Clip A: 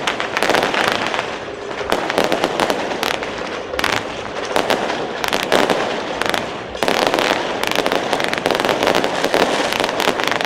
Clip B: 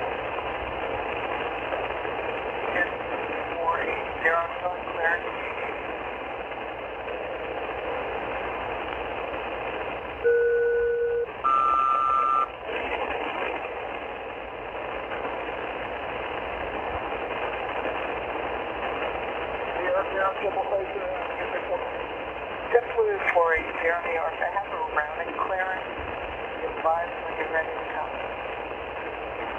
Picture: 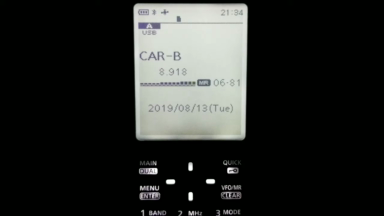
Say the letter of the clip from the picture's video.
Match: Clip B